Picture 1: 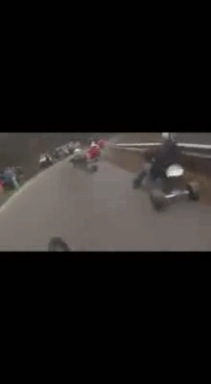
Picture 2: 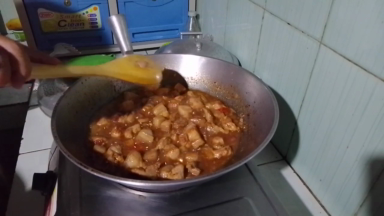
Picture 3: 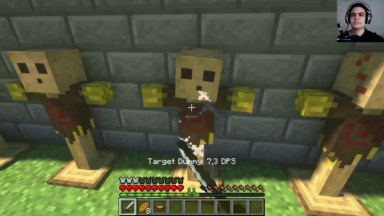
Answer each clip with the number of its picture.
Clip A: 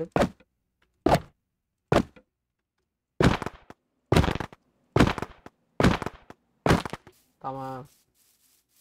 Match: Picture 3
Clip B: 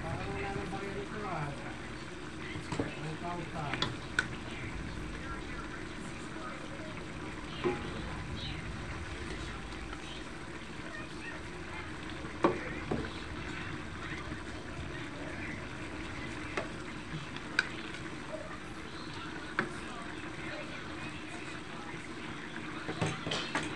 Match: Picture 2